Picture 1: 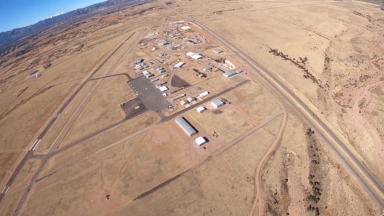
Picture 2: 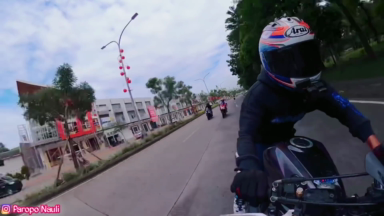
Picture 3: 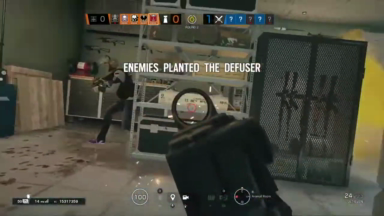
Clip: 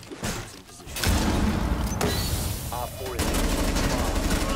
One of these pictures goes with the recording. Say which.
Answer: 3